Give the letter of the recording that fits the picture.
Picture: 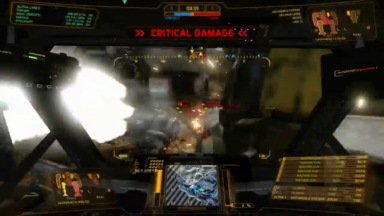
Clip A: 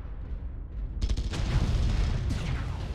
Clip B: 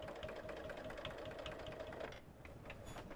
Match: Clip A